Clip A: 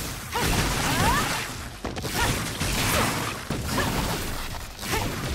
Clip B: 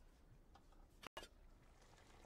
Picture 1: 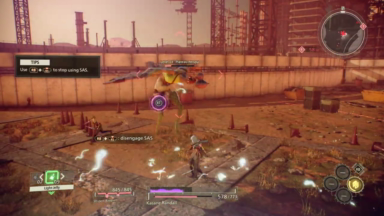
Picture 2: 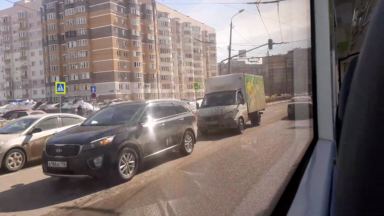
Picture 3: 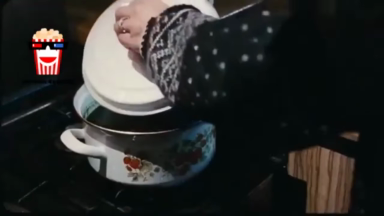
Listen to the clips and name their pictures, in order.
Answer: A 1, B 3